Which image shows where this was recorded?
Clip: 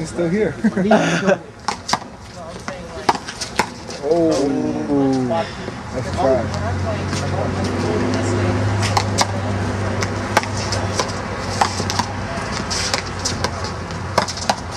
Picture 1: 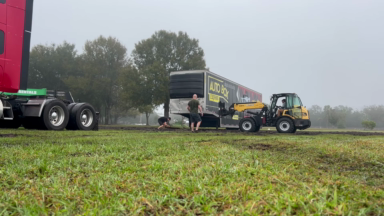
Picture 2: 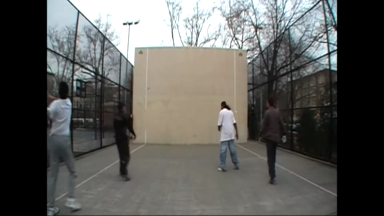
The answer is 2